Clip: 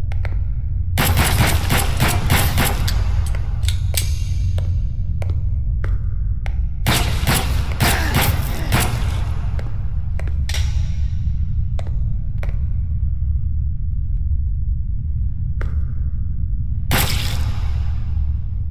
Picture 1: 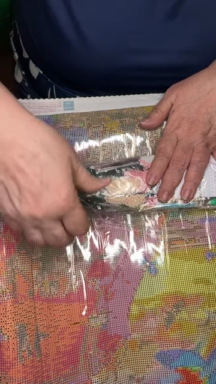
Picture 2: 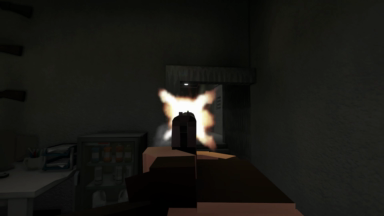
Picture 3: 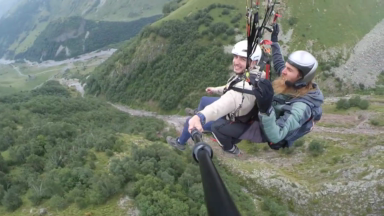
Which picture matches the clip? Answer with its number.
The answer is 2